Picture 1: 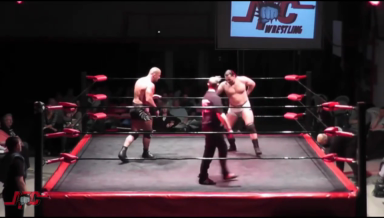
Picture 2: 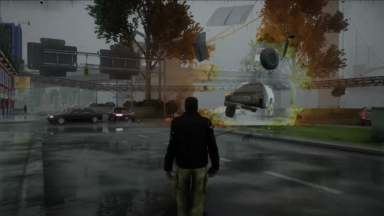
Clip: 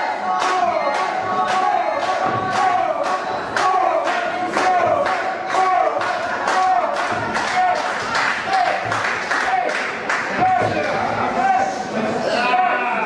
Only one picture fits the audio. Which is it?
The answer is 1